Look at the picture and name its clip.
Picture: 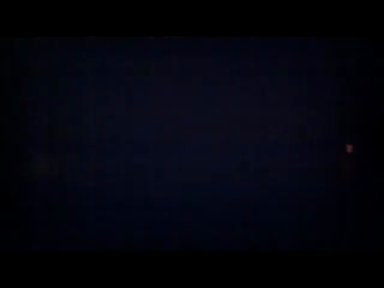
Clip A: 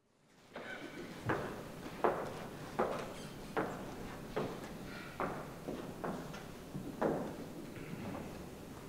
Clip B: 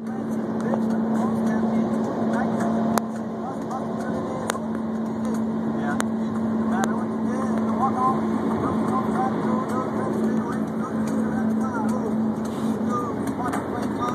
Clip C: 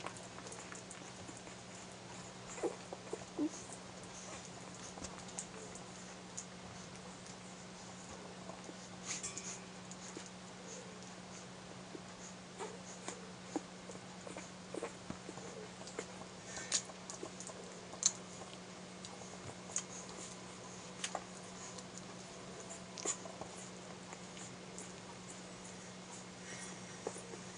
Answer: B